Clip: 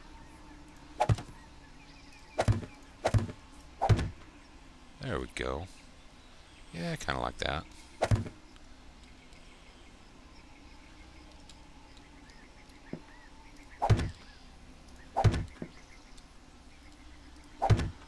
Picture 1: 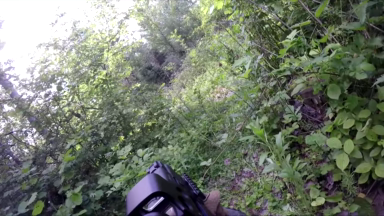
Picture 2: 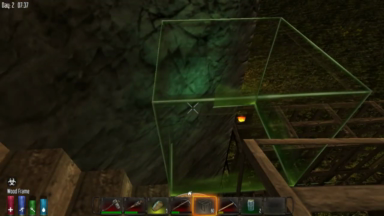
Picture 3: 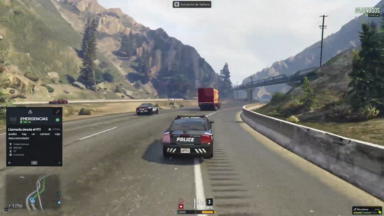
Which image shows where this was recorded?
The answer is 2